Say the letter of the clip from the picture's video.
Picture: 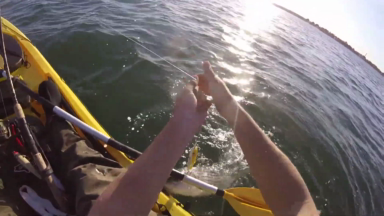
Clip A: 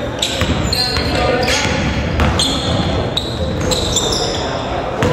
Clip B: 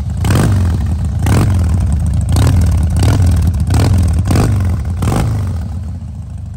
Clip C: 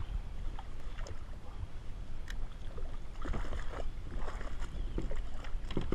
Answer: C